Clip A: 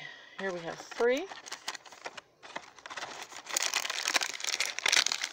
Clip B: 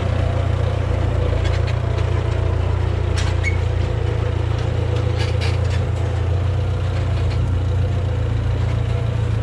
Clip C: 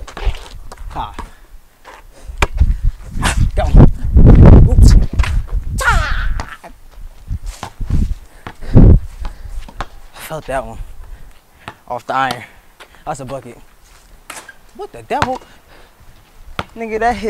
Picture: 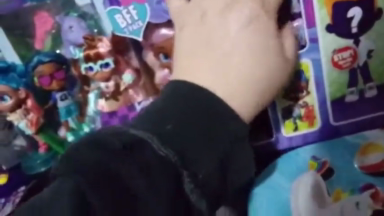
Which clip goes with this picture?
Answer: A